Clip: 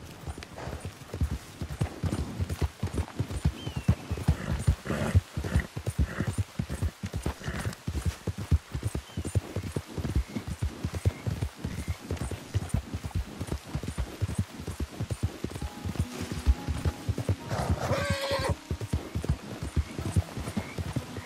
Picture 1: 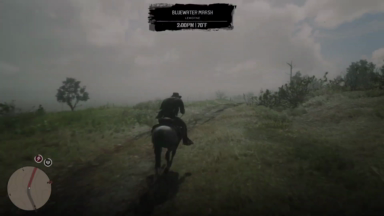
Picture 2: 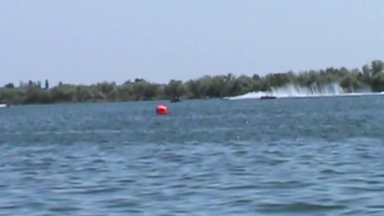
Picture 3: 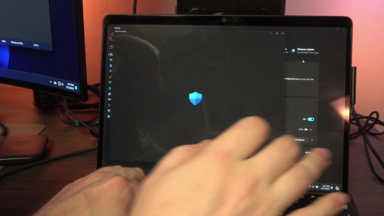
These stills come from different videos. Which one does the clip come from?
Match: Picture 1